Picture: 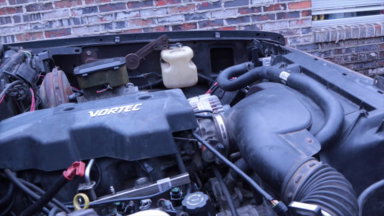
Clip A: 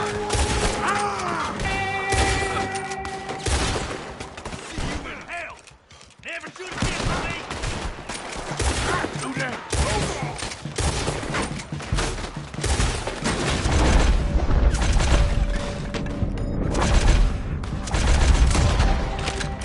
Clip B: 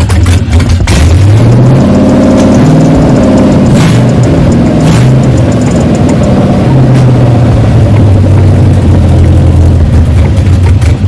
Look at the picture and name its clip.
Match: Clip B